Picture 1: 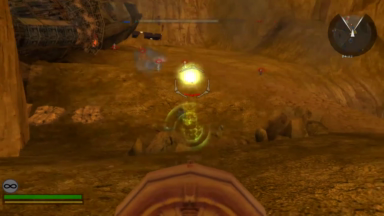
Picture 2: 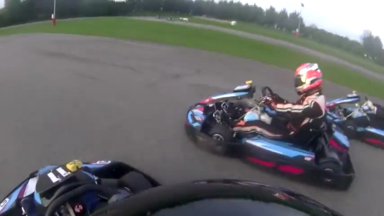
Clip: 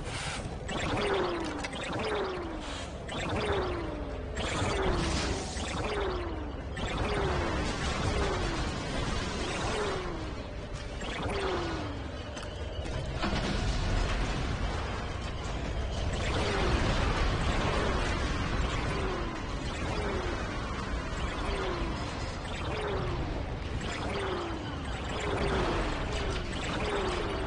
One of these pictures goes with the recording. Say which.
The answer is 1